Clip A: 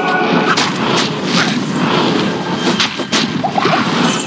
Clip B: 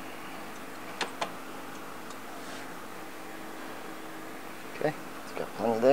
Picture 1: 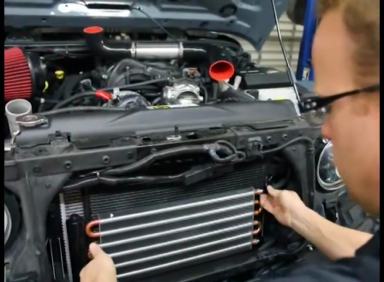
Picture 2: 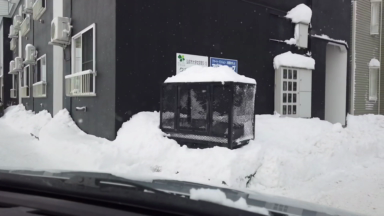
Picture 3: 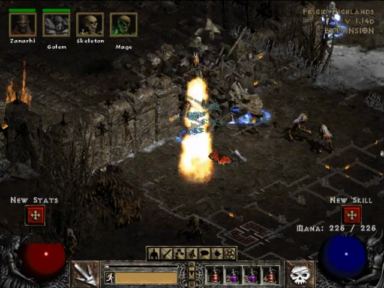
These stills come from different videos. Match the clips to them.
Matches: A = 3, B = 1